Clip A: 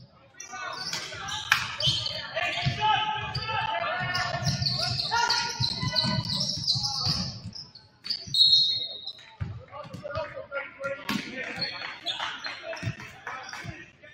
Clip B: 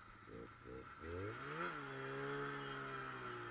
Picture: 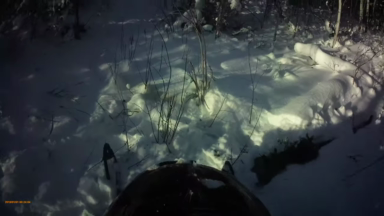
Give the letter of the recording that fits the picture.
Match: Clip B